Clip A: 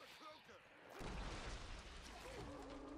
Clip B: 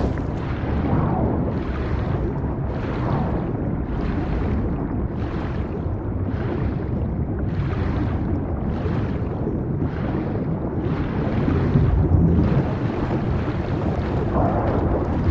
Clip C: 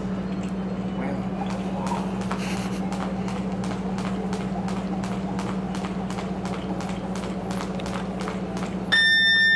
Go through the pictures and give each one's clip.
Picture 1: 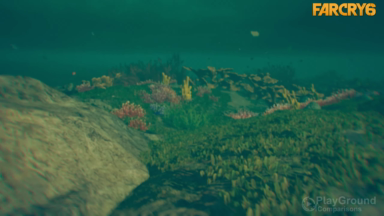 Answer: B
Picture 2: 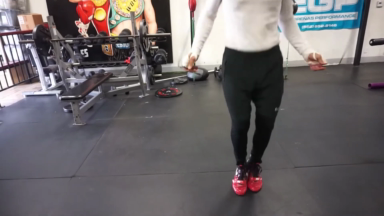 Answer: C